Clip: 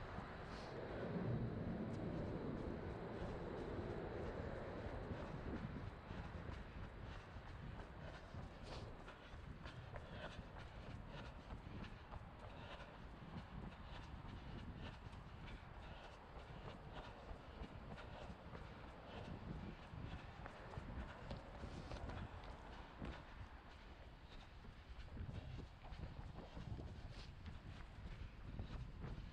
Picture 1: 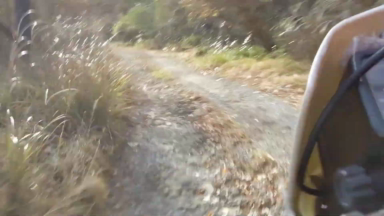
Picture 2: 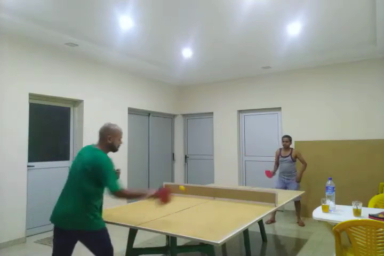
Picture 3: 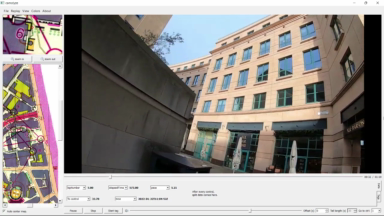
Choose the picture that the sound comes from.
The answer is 3